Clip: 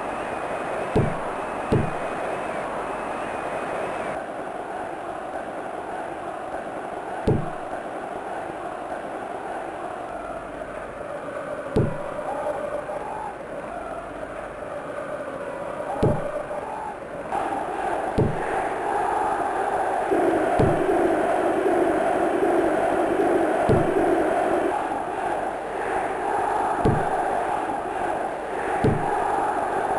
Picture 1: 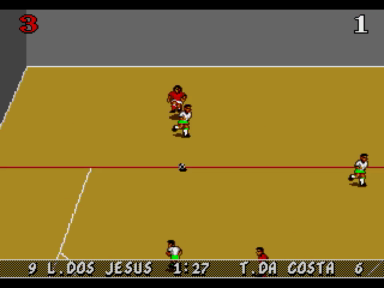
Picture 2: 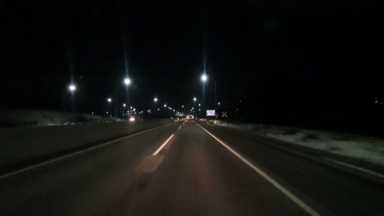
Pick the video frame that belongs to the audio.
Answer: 1